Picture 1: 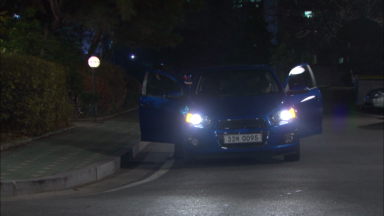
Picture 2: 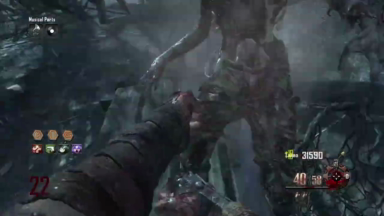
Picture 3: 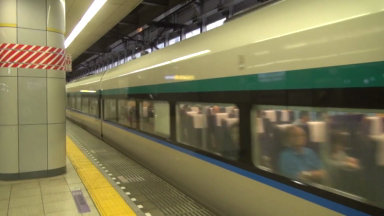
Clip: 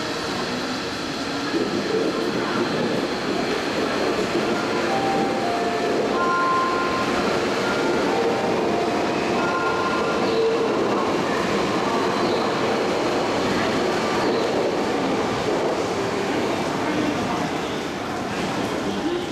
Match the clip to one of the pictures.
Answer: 3